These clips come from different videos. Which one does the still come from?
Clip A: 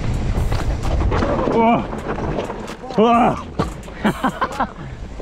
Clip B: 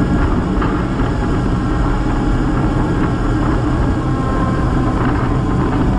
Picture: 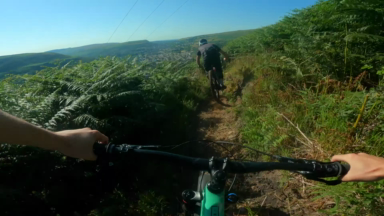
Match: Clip A